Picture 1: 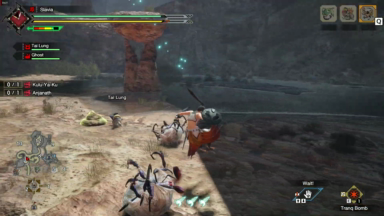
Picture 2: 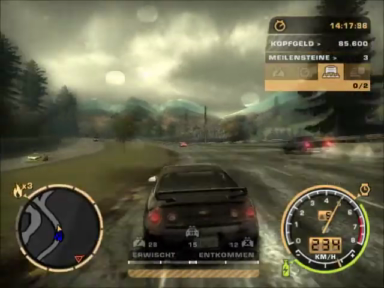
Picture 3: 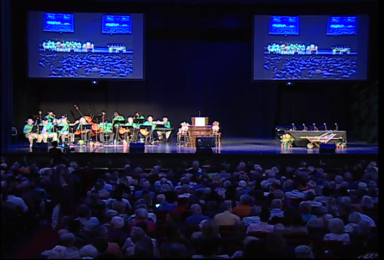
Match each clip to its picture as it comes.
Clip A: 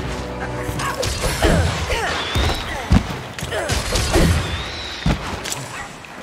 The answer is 1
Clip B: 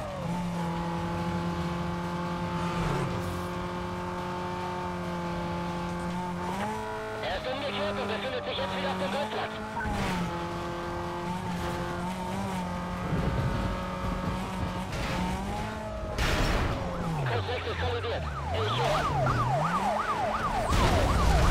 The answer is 2